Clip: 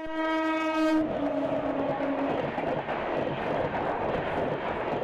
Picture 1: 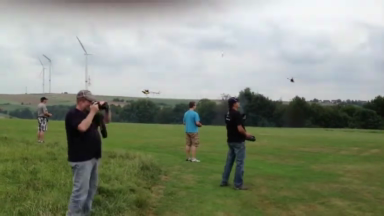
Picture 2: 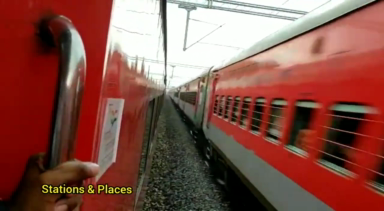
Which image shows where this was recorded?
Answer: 2